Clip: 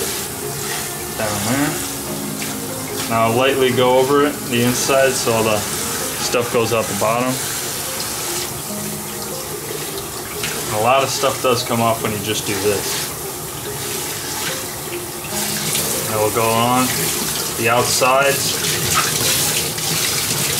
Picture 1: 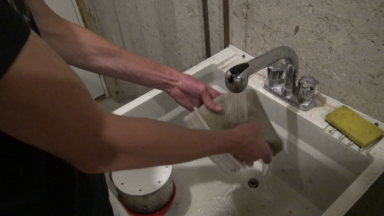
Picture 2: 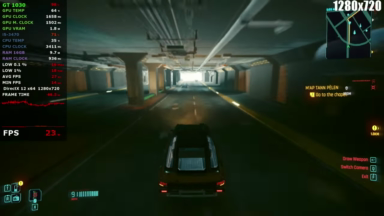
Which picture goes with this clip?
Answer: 1